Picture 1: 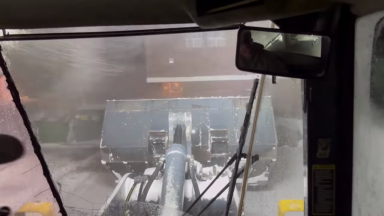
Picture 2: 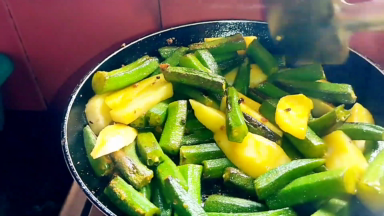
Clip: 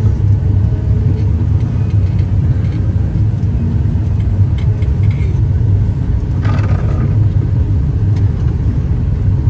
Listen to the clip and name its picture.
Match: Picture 1